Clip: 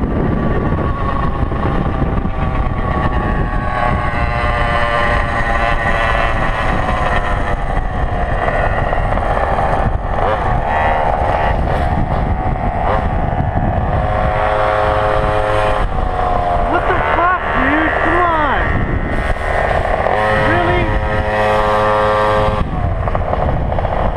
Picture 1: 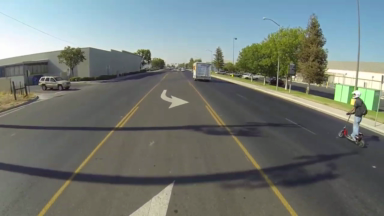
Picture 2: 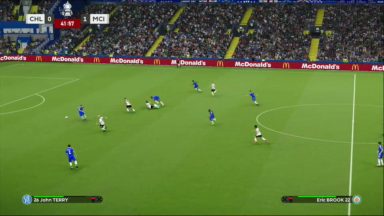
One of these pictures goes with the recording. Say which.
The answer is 1